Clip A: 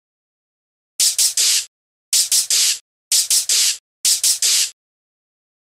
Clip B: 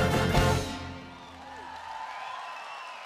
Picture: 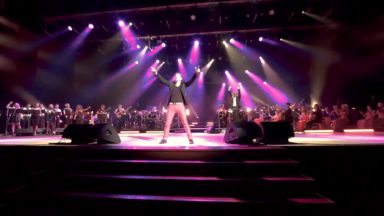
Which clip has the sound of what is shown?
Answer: B